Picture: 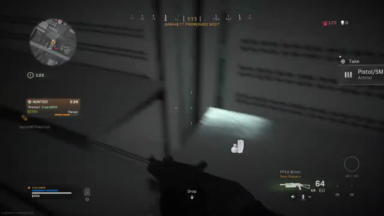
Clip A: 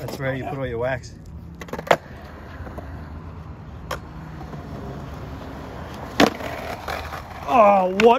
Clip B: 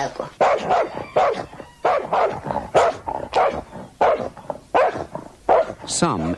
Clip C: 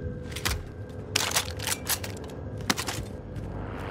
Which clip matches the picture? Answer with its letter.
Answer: C